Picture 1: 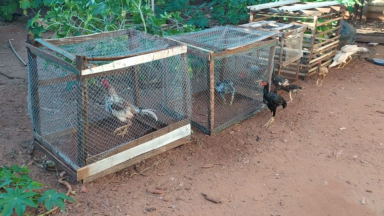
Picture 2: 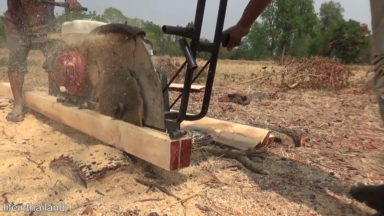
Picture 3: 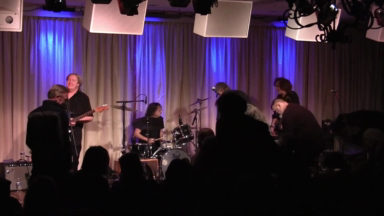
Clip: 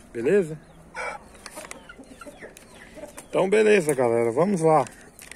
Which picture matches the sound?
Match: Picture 1